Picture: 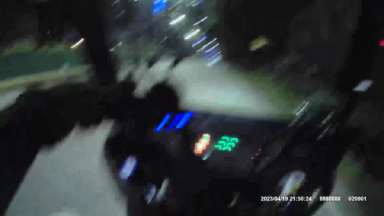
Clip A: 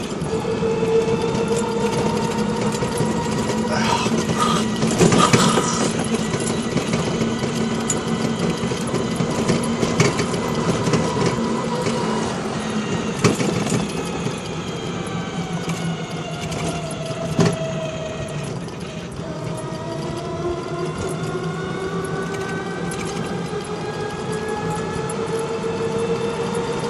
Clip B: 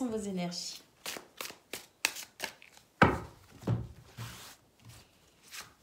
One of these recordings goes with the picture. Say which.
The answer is A